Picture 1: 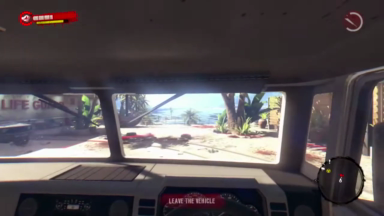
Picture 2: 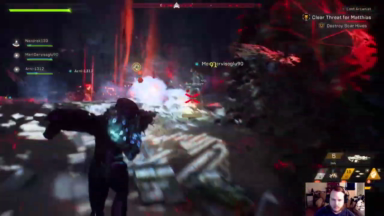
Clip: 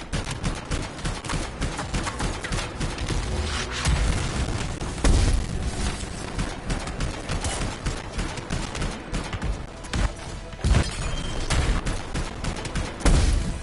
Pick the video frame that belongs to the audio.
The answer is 2